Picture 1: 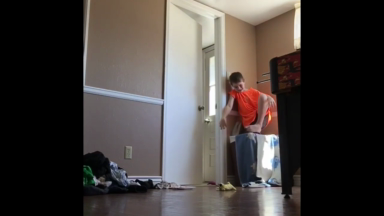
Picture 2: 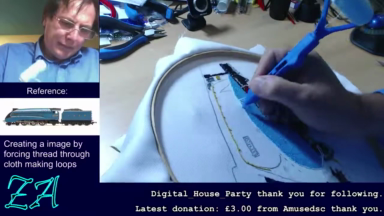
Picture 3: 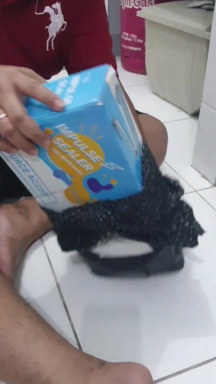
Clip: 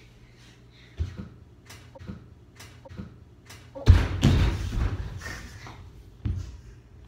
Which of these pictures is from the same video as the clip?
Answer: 1